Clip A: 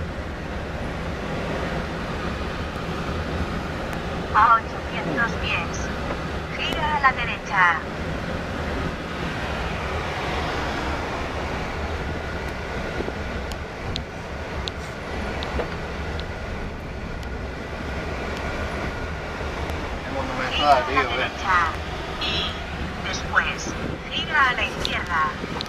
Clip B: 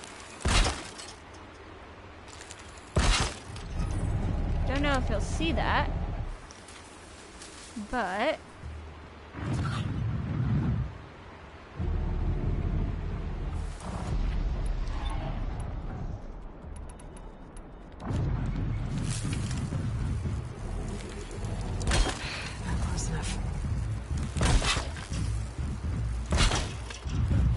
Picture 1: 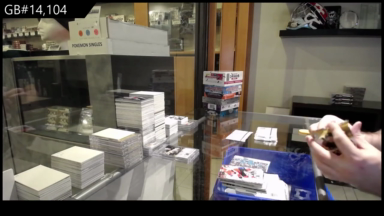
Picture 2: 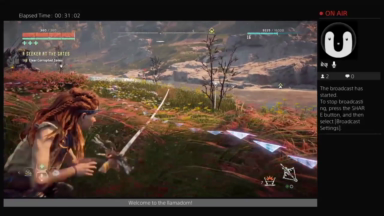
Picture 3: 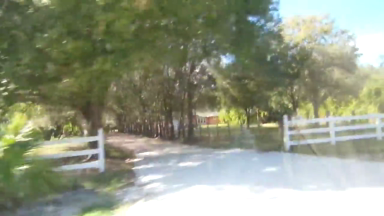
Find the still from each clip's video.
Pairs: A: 3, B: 2